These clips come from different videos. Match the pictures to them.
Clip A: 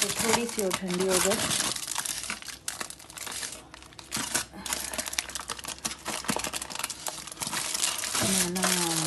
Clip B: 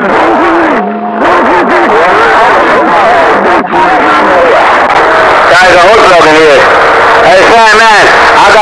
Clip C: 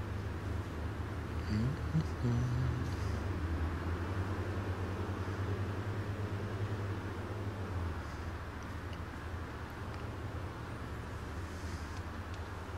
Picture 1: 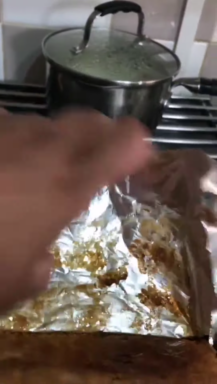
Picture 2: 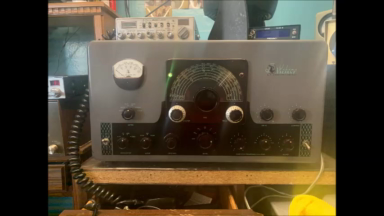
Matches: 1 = A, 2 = B